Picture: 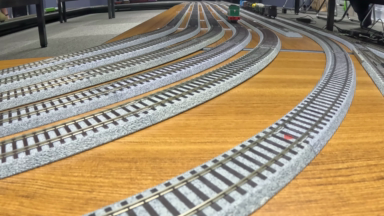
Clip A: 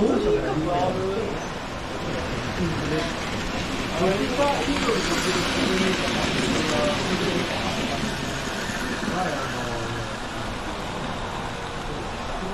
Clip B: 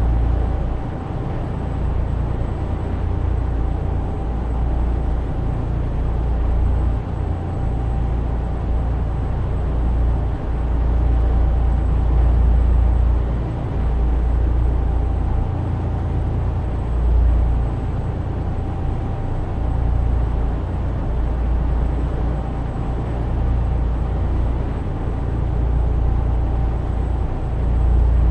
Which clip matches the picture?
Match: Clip A